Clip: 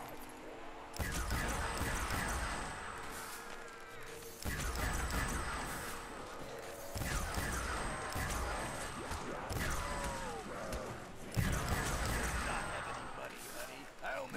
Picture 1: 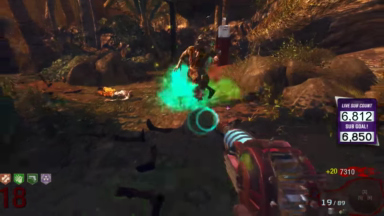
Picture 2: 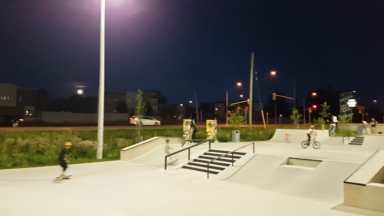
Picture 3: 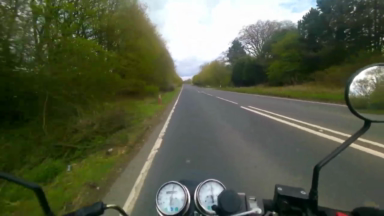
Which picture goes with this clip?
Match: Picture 1